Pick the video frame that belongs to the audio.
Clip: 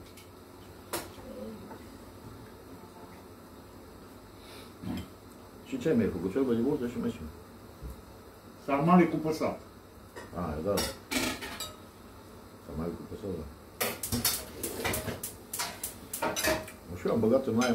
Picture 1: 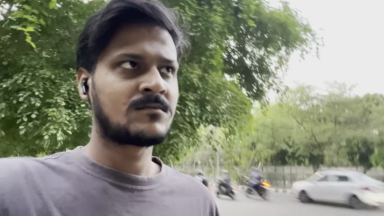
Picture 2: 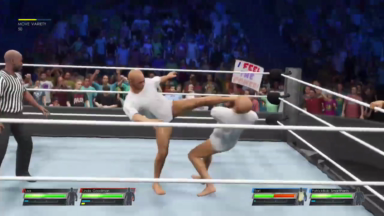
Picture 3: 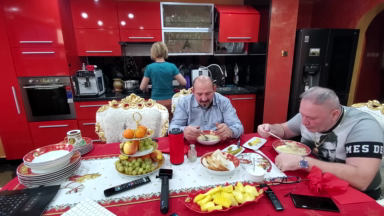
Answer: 3